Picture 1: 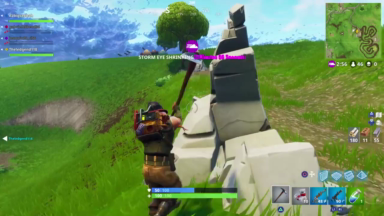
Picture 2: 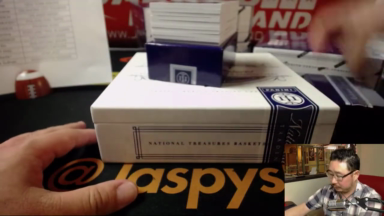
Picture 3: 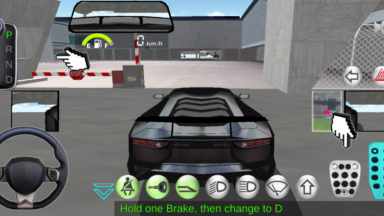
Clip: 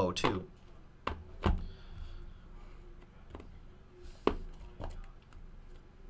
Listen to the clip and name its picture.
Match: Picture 2